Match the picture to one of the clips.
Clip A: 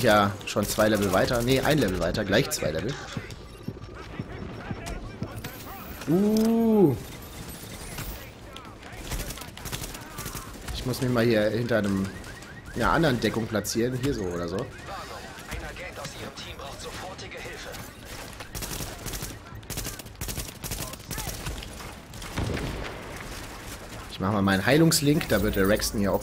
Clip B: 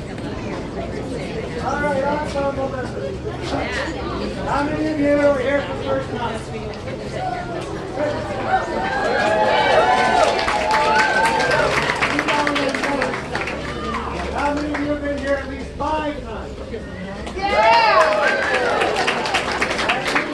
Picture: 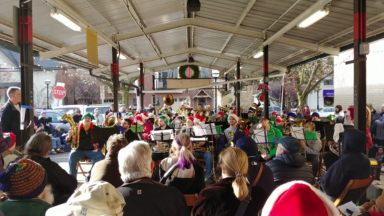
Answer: B